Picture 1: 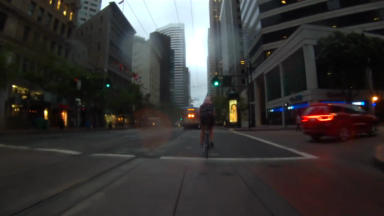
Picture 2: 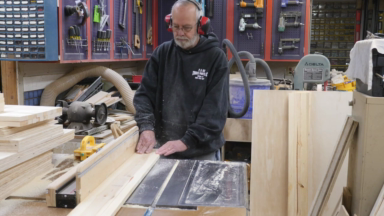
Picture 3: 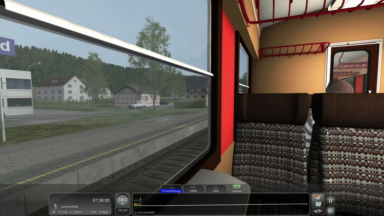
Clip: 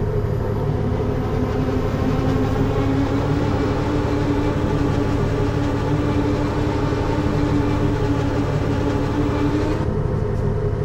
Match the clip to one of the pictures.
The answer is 3